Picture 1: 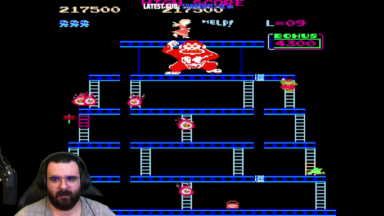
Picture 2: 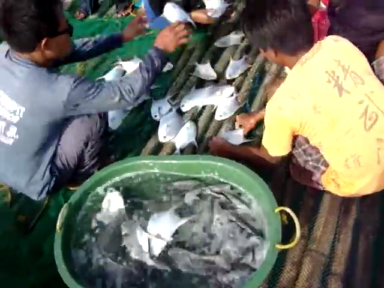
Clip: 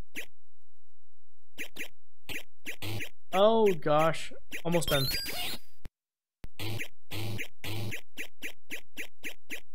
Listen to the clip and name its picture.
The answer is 1